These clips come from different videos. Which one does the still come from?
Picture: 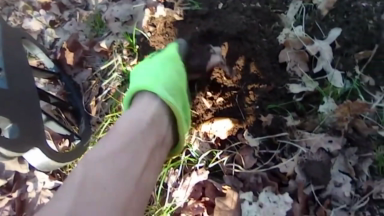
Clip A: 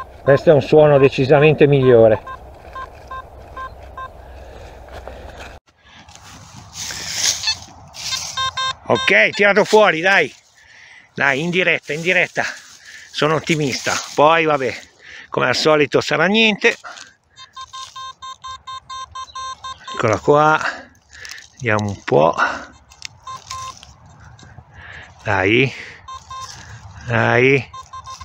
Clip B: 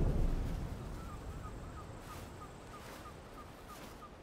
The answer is A